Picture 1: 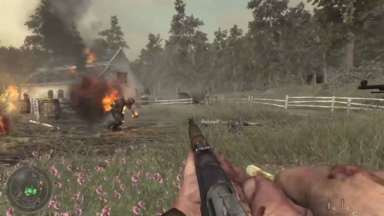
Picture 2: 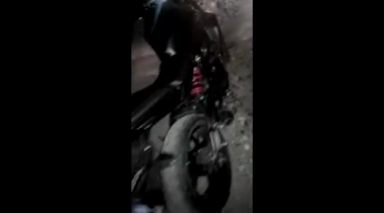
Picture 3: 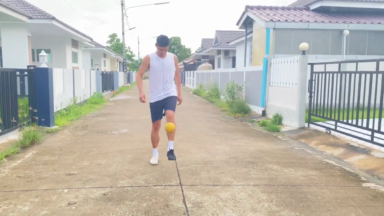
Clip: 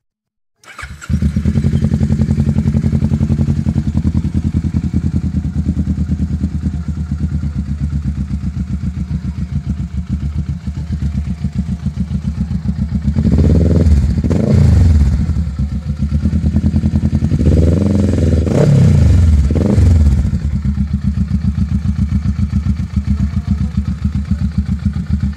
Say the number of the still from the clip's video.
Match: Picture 2